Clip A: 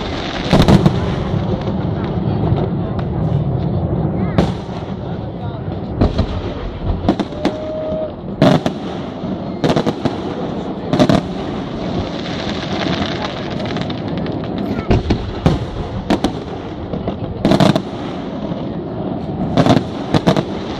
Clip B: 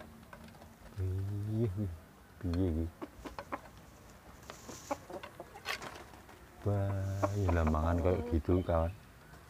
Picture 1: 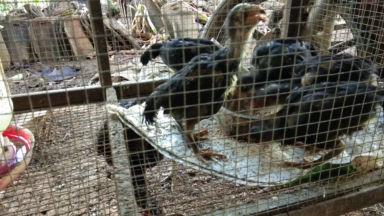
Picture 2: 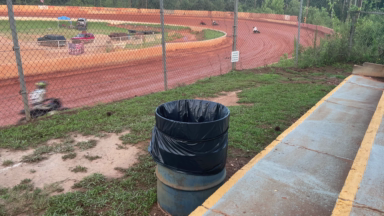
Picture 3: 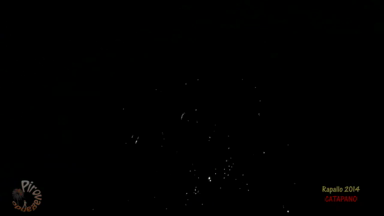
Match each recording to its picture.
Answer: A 3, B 1